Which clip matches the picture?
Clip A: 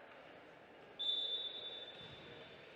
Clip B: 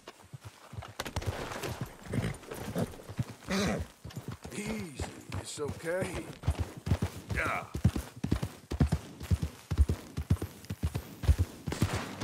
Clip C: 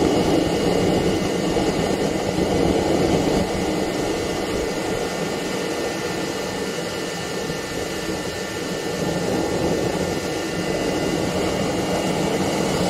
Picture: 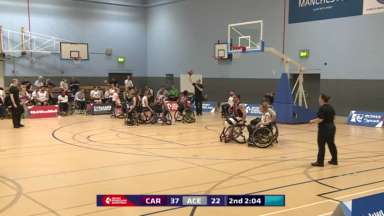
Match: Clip A